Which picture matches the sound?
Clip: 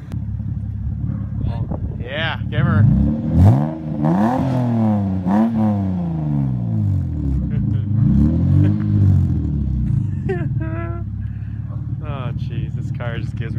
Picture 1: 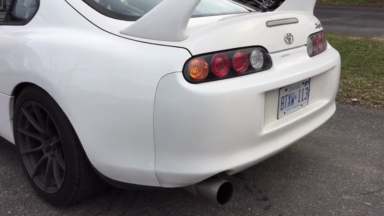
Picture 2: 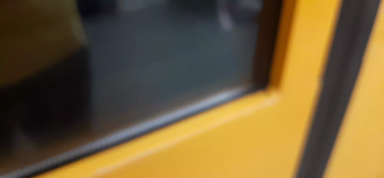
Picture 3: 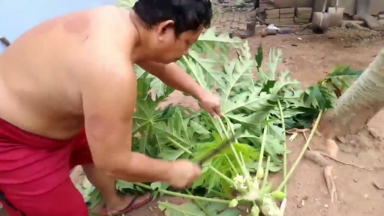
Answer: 1